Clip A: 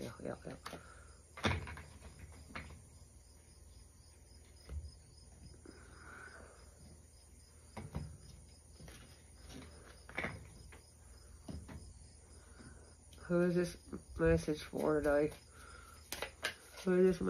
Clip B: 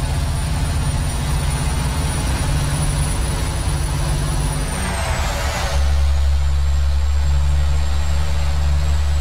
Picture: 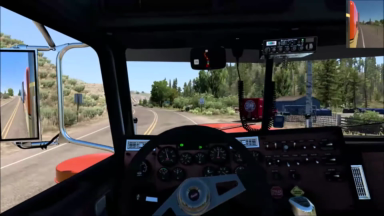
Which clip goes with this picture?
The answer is B